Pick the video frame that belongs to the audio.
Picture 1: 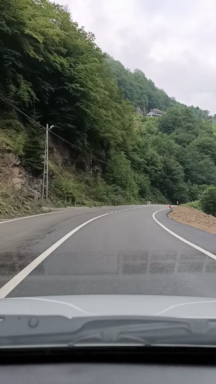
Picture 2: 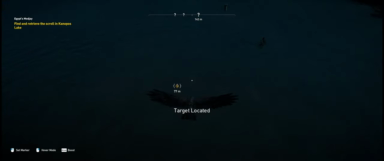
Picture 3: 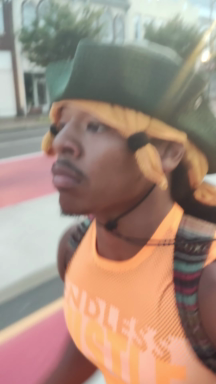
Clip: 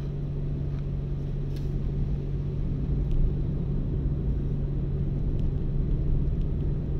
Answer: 1